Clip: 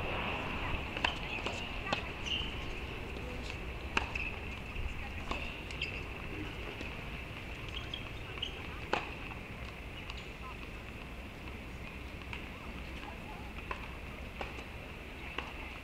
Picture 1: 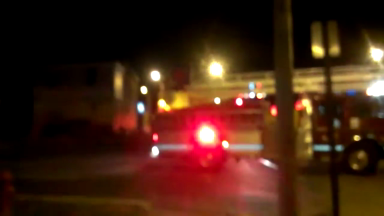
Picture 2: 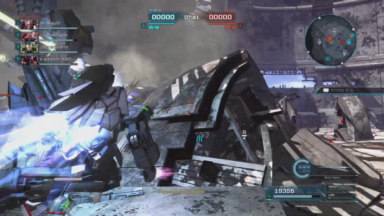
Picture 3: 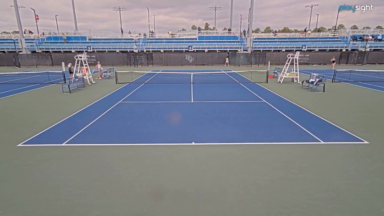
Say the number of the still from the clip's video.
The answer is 3